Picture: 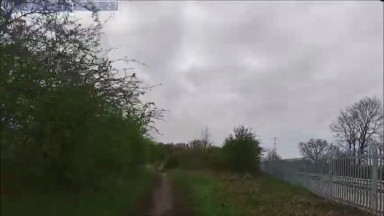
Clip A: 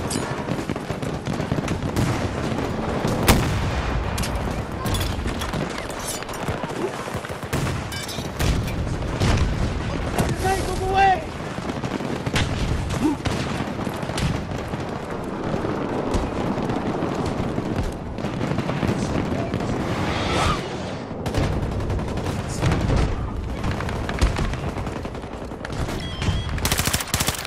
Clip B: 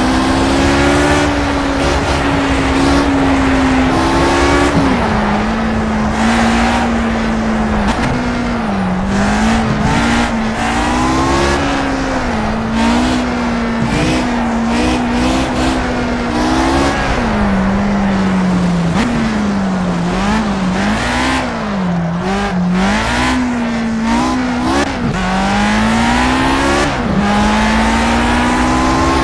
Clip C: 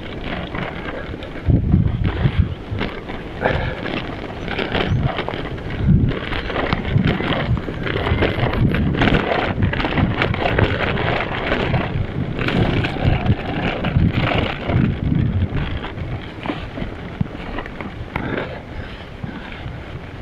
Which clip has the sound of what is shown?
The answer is C